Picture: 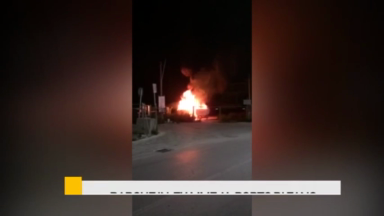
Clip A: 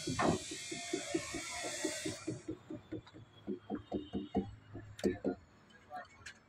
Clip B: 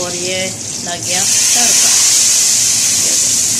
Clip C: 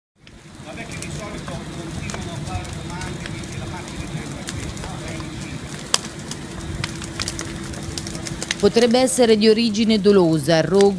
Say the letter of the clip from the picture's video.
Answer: C